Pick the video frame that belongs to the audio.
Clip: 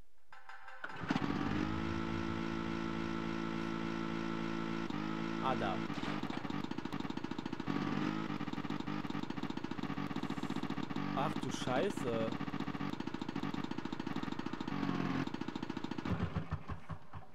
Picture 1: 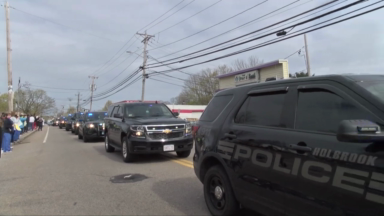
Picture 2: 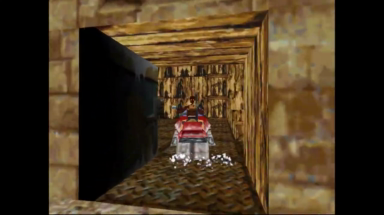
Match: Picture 2